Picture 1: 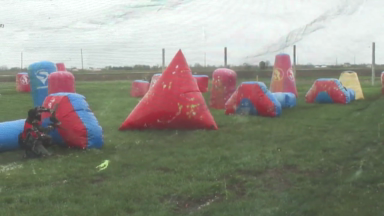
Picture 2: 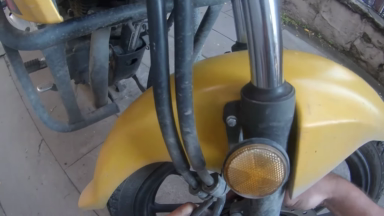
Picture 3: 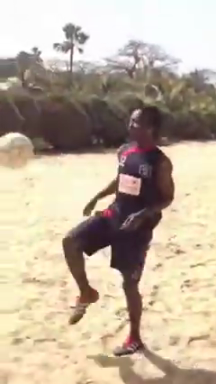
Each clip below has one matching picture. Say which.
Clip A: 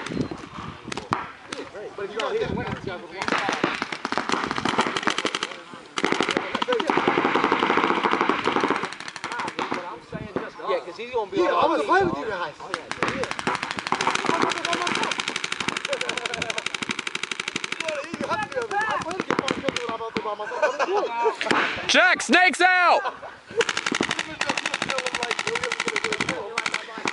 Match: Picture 1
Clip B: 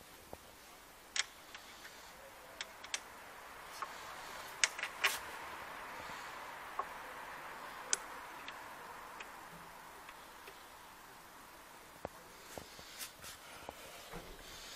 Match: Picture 2